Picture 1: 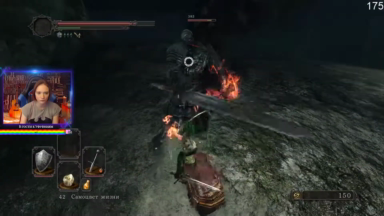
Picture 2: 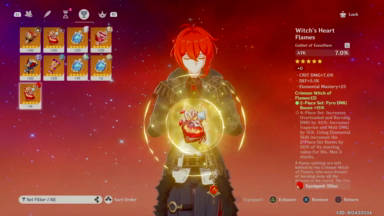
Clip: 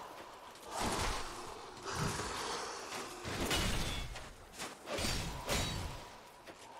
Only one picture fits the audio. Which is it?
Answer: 1